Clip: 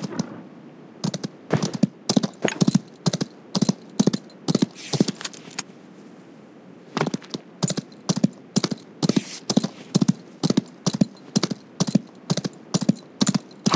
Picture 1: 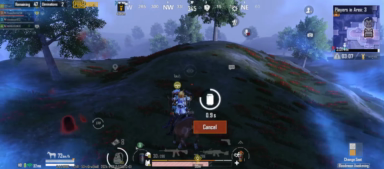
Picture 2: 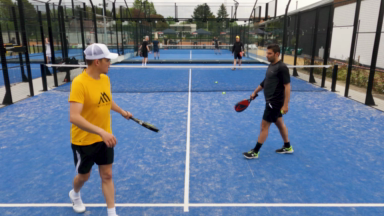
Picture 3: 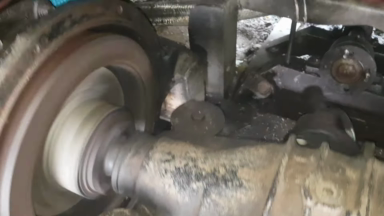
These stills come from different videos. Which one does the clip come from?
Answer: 1